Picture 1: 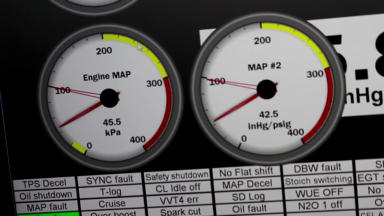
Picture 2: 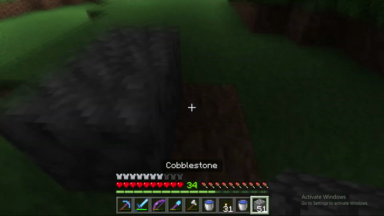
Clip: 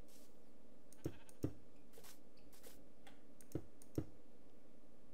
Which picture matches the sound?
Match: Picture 2